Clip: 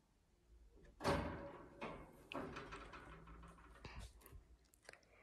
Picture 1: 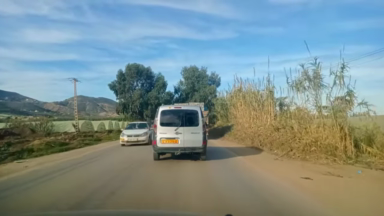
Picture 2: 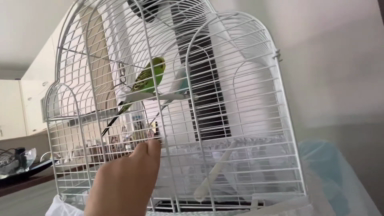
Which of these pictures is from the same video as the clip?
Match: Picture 2